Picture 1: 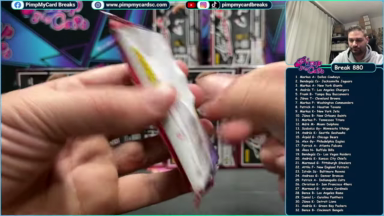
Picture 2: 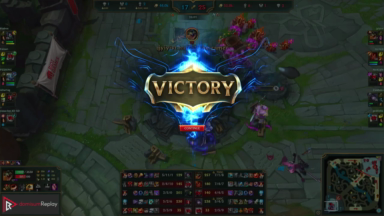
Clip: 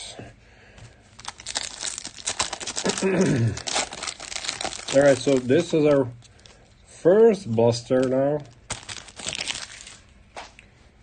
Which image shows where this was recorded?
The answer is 1